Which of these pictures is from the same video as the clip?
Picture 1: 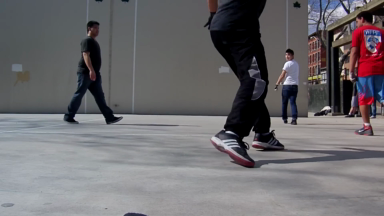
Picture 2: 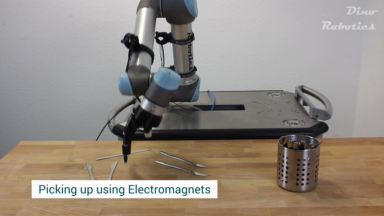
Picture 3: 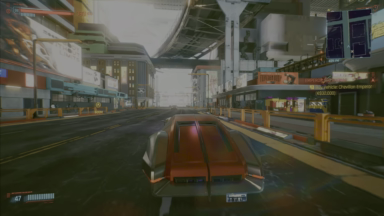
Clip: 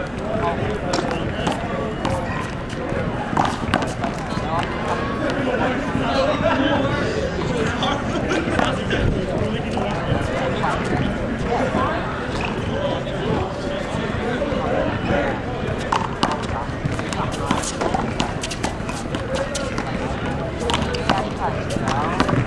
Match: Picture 1